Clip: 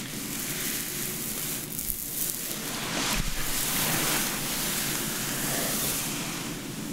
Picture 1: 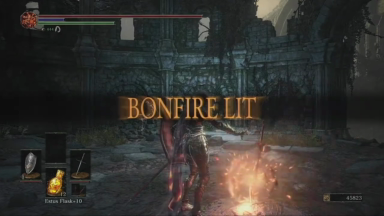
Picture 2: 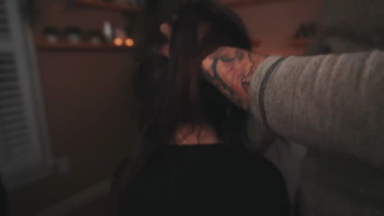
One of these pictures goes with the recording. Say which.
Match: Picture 2